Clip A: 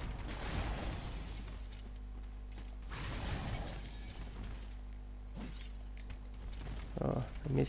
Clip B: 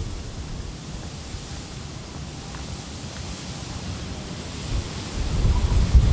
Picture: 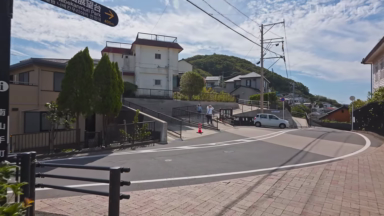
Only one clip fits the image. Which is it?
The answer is B